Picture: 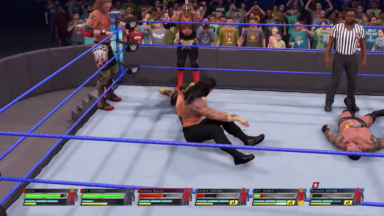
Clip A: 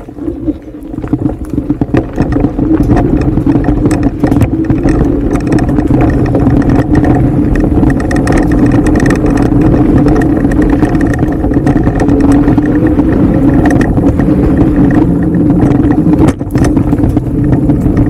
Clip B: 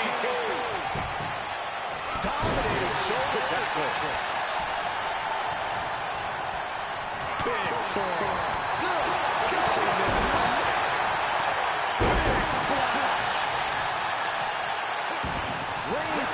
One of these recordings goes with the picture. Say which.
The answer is B